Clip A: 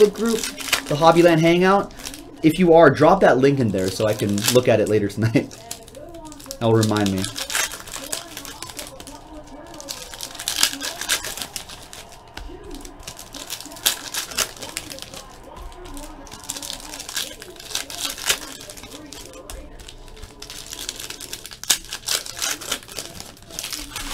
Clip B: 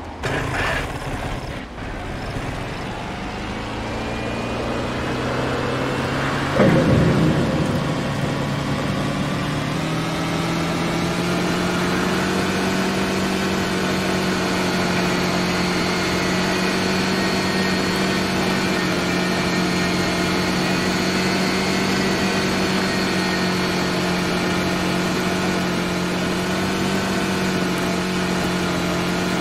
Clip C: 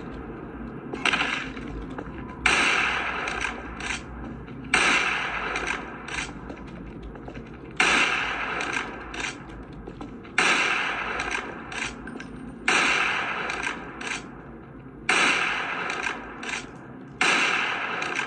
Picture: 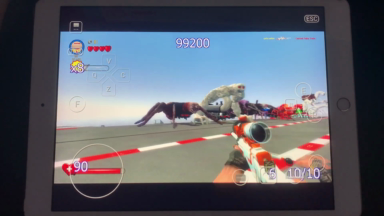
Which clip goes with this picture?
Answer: C